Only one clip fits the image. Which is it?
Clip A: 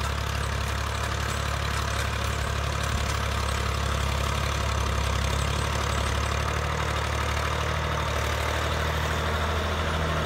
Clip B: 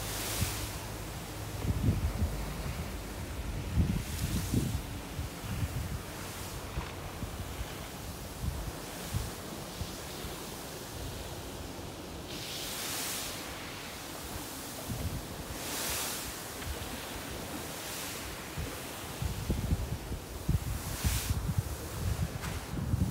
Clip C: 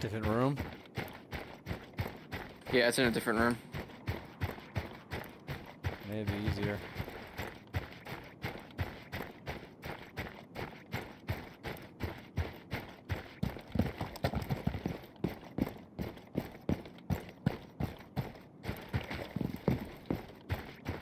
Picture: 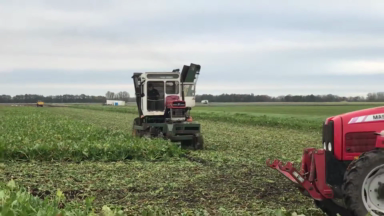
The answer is A